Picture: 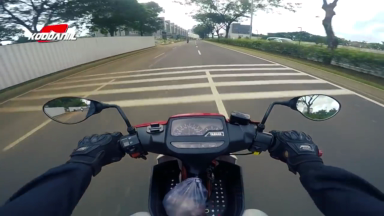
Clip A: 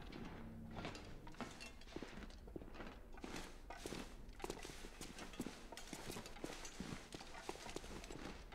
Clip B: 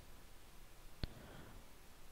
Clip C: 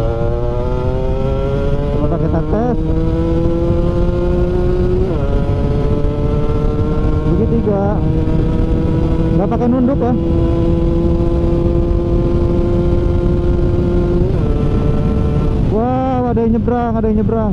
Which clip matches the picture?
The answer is C